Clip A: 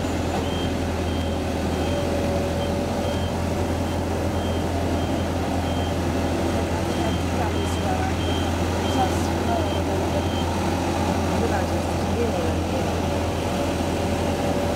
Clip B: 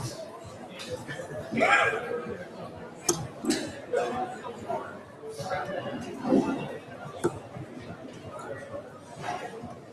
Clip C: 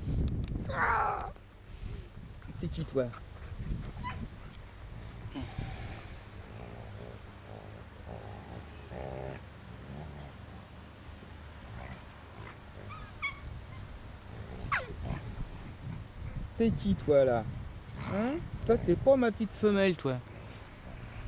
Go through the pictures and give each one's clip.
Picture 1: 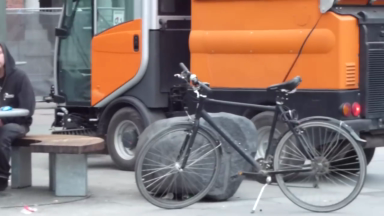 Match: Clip A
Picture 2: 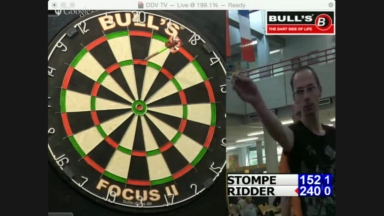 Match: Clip B